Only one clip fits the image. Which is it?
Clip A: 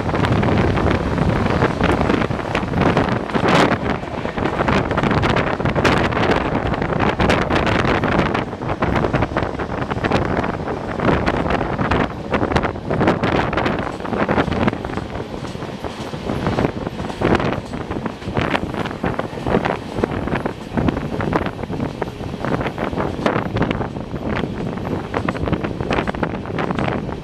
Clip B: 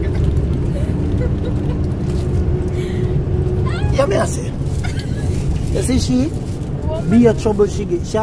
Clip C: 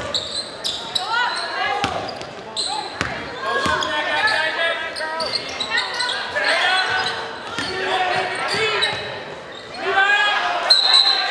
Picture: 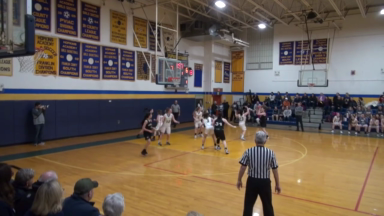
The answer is C